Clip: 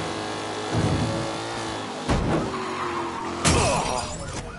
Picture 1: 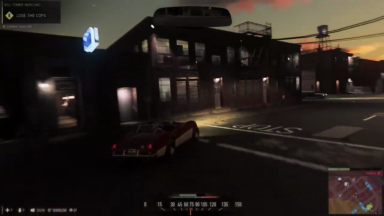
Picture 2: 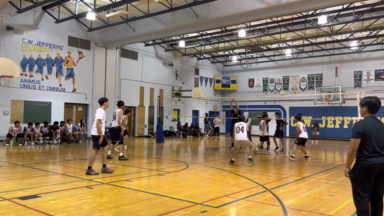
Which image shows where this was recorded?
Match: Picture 1